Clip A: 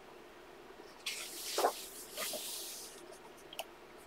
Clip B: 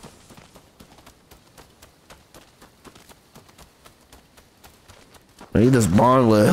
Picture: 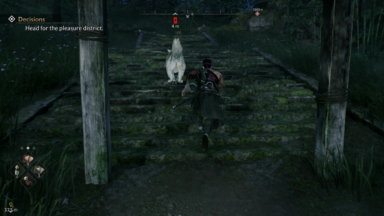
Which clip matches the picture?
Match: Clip B